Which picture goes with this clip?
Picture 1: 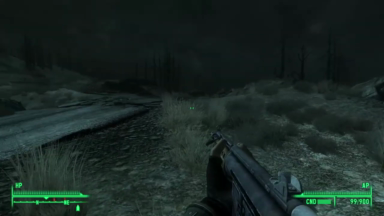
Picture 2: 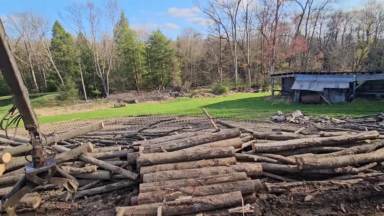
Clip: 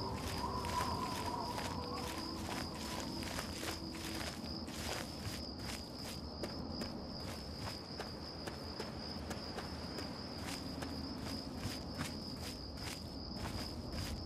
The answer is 1